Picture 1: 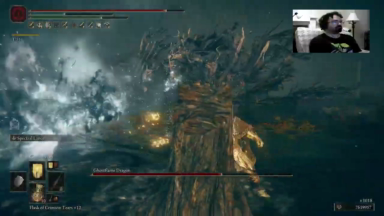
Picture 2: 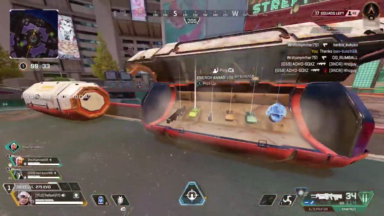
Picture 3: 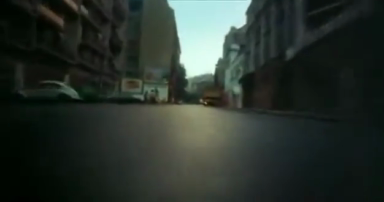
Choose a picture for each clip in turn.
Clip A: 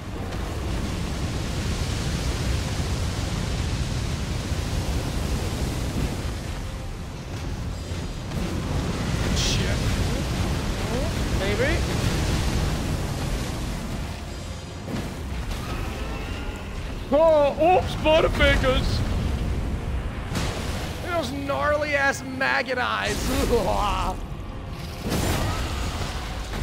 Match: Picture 1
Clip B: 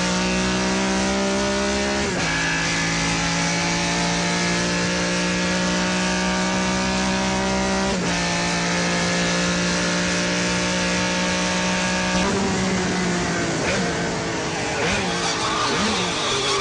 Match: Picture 3